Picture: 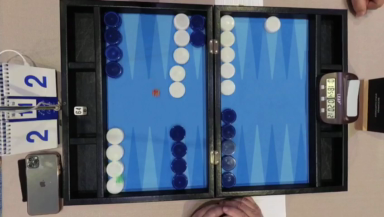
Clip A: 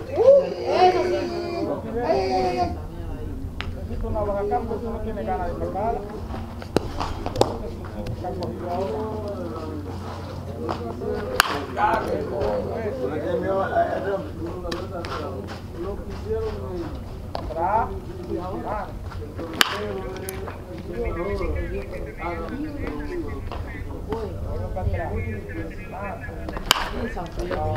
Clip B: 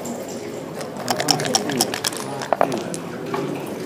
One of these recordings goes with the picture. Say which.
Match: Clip B